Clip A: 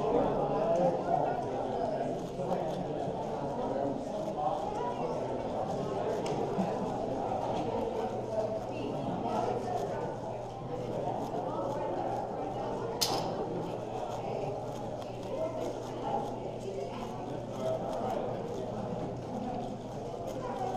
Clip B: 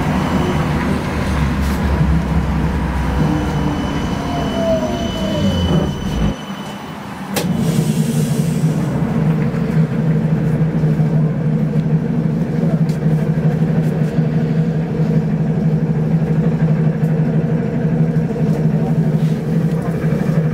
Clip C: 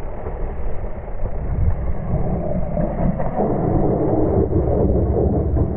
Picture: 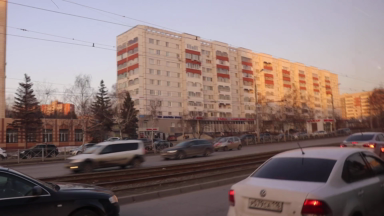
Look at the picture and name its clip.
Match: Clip B